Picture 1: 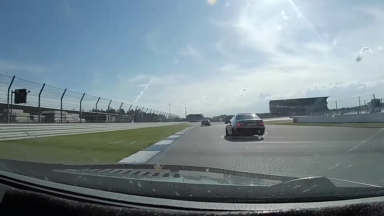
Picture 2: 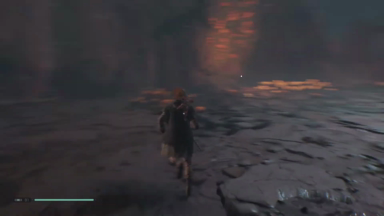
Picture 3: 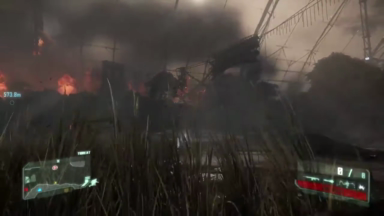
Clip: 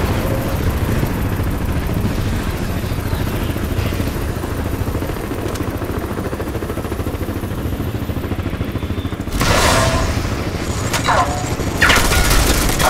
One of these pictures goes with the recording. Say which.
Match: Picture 3